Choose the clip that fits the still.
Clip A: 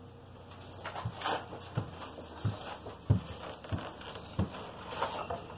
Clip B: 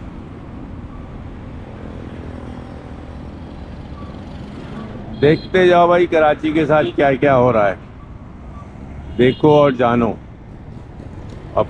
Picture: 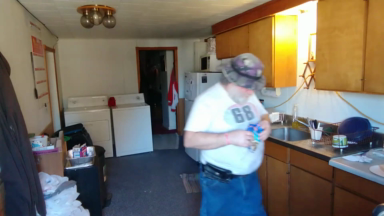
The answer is A